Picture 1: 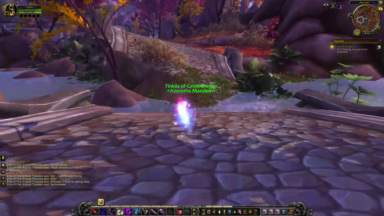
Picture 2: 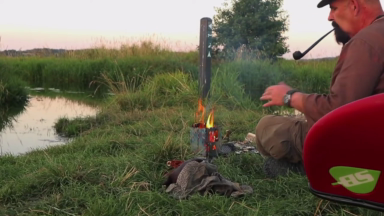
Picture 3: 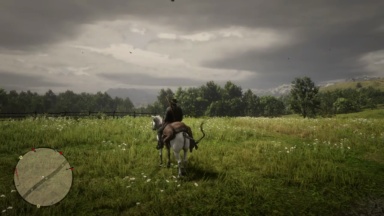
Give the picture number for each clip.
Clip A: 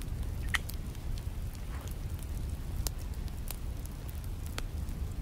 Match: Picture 2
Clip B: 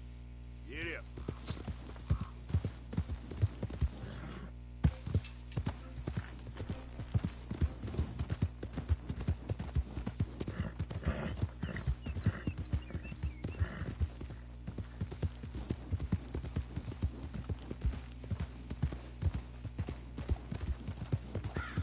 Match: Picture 3